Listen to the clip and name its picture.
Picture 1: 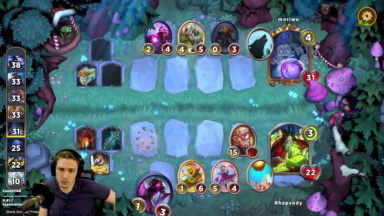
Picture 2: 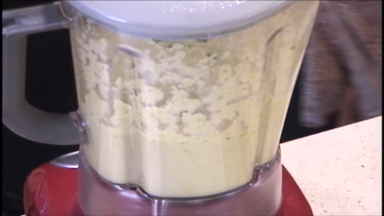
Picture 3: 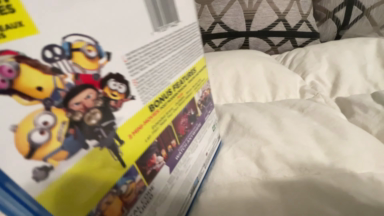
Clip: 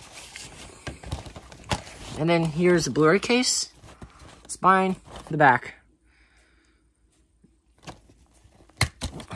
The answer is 3